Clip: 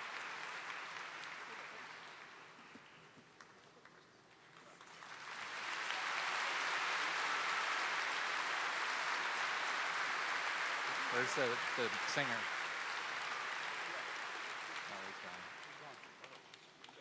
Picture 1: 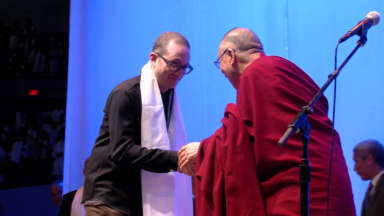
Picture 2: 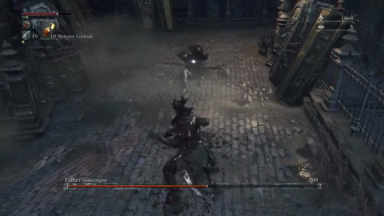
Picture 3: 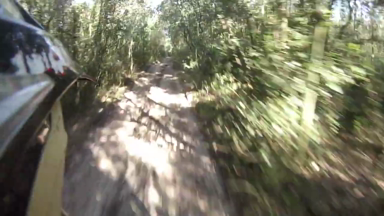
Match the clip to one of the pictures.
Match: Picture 1